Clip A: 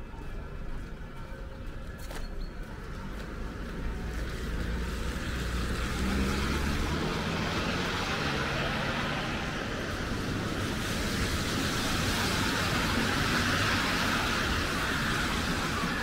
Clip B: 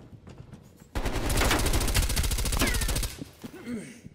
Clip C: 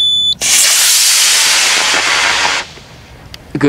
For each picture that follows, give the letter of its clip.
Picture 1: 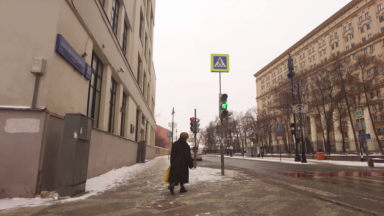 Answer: A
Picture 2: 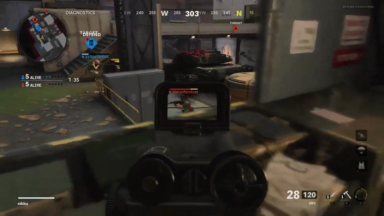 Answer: B